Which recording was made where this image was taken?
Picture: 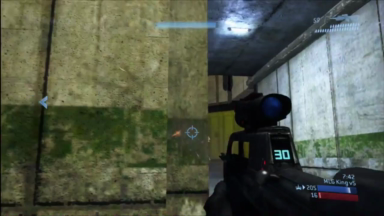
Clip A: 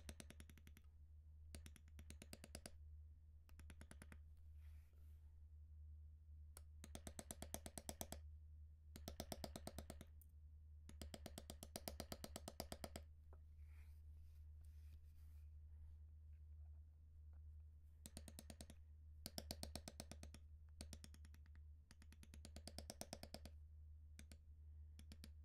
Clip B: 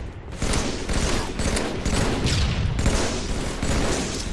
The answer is B